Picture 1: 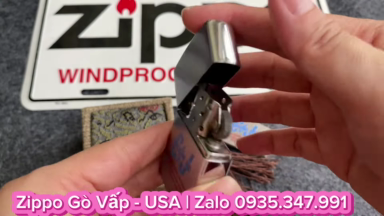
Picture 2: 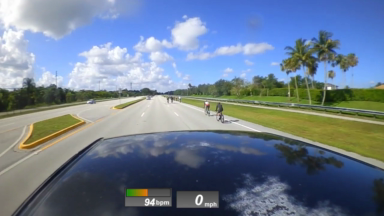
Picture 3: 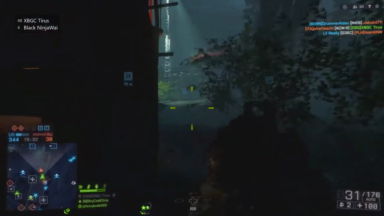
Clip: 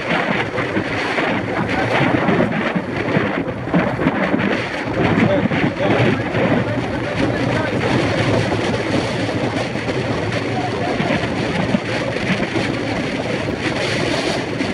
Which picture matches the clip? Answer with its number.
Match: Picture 2